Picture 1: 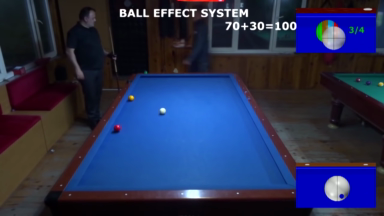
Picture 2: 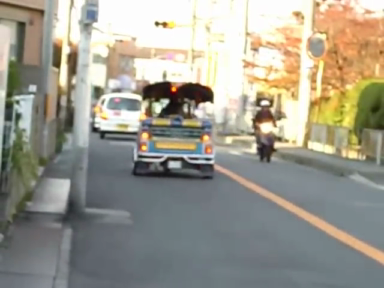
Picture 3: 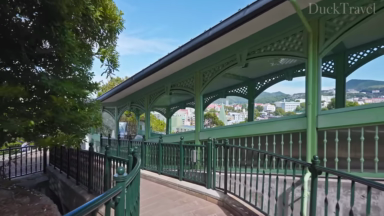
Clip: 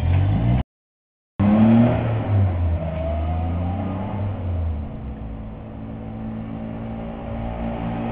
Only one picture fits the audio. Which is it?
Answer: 2